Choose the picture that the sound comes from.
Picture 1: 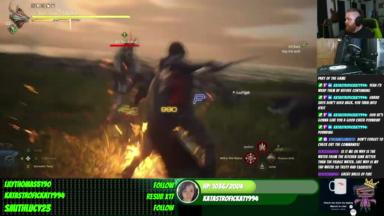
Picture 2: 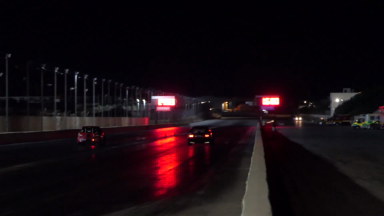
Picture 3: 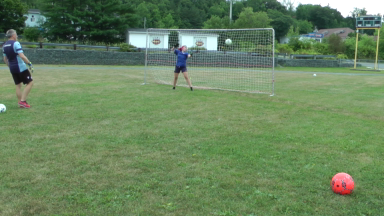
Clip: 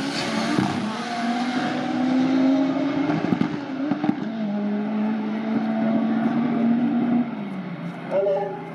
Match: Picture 2